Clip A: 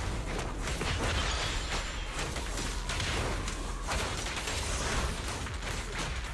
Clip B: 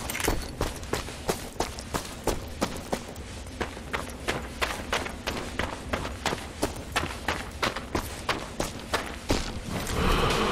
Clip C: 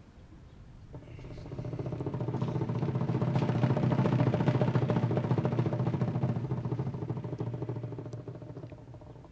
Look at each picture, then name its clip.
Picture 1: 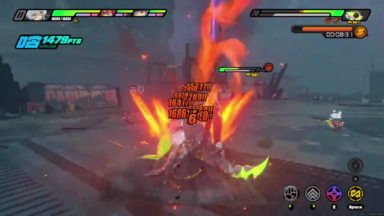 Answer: A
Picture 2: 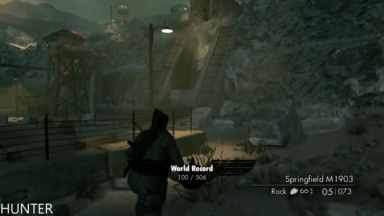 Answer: B